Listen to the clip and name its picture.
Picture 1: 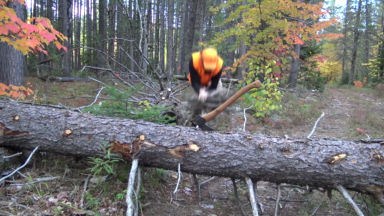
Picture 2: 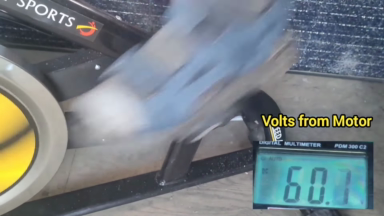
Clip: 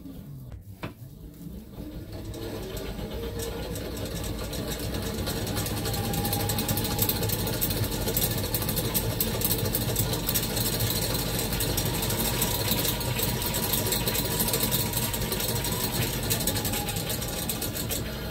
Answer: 2